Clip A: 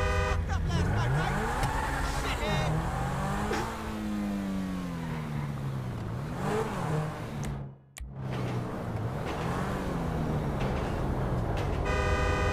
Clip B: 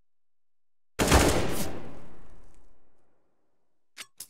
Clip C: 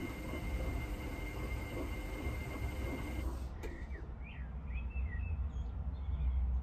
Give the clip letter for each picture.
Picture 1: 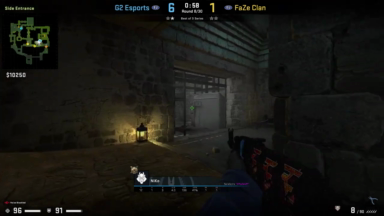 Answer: B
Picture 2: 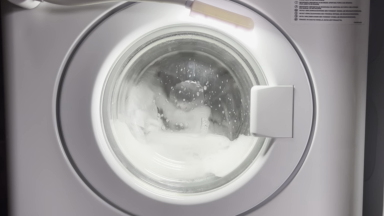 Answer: C